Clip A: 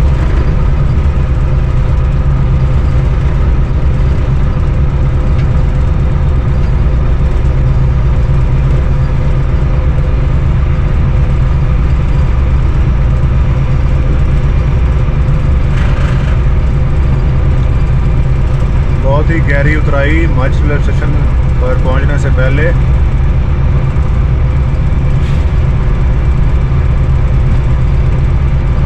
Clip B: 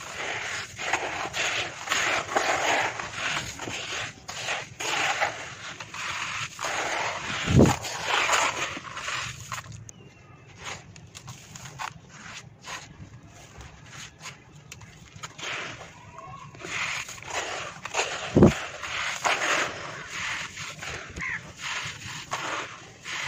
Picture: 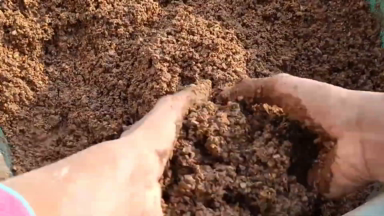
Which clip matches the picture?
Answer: B